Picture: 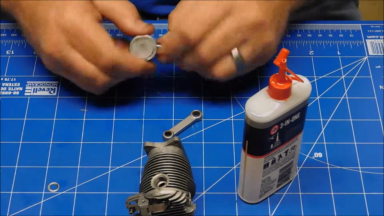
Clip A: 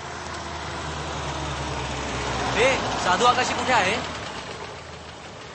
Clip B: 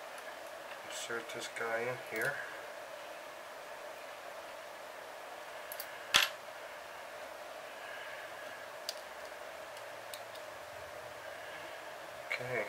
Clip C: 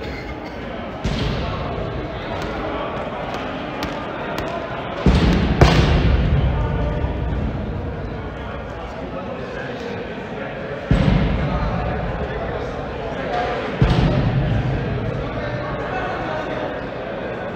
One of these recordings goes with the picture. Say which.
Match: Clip B